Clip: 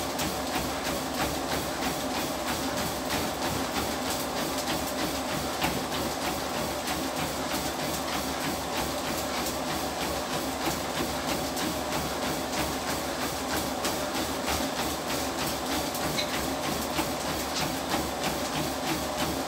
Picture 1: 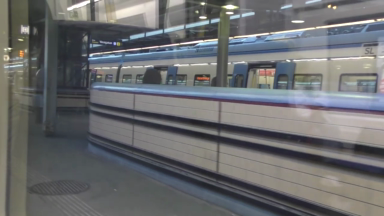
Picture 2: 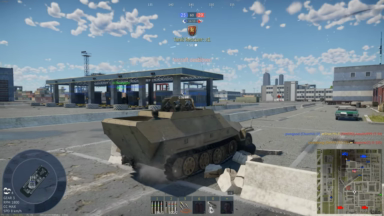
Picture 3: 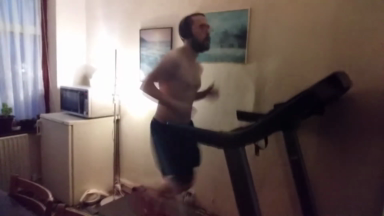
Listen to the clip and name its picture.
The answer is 3